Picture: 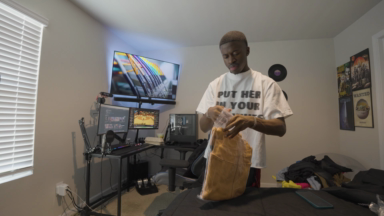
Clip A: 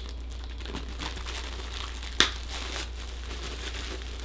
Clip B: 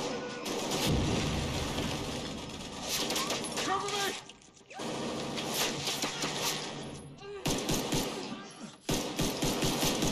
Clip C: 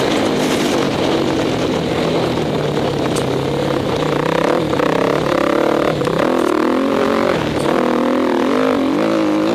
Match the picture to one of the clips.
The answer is A